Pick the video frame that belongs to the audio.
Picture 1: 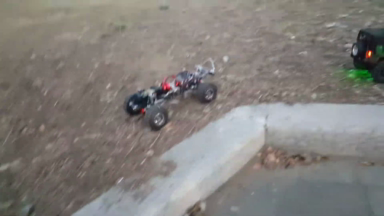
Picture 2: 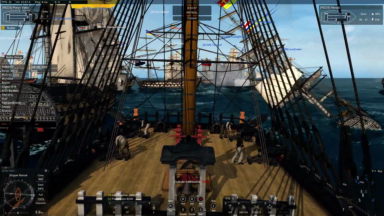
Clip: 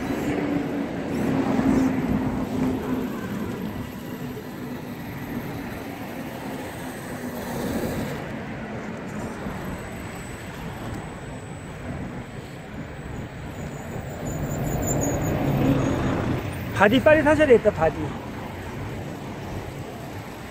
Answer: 1